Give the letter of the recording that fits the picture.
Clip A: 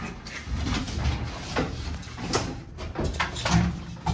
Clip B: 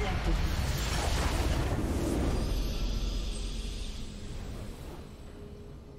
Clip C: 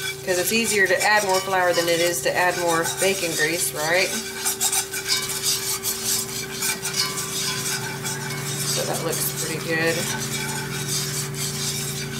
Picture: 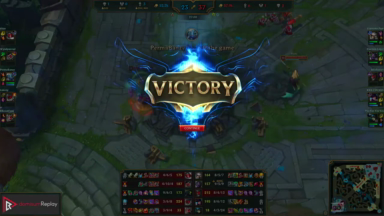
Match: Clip B